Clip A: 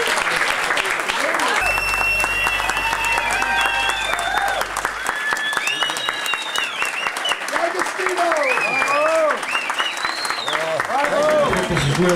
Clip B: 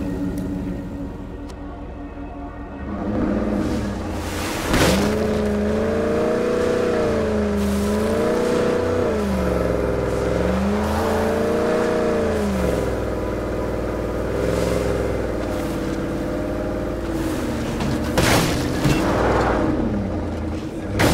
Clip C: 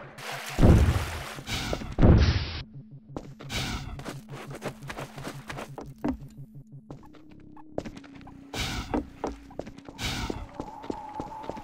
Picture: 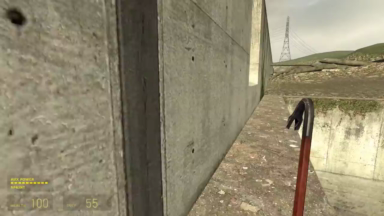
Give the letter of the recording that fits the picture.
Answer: C